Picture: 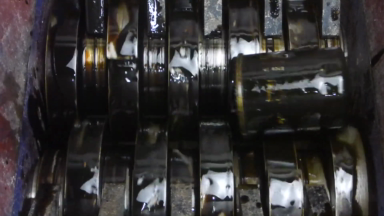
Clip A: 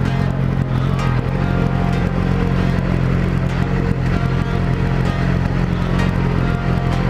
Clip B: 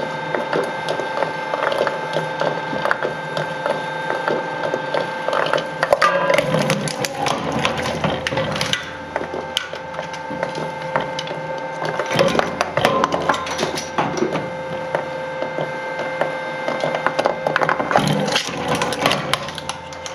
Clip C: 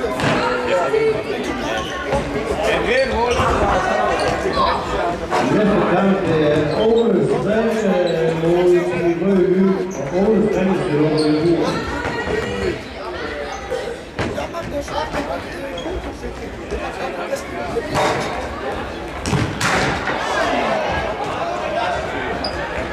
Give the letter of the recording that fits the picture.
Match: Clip B